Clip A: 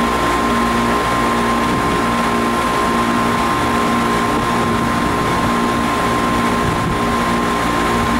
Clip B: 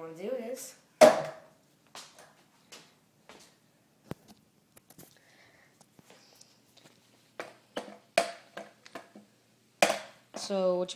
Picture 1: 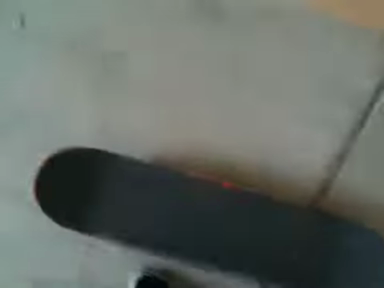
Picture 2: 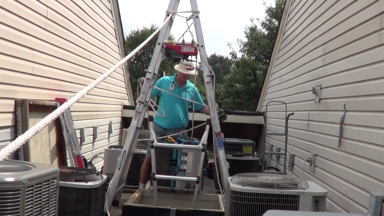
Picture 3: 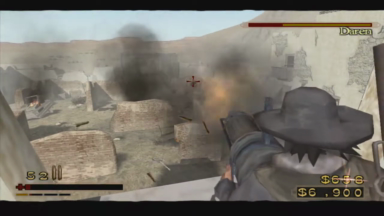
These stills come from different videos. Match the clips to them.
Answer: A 2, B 1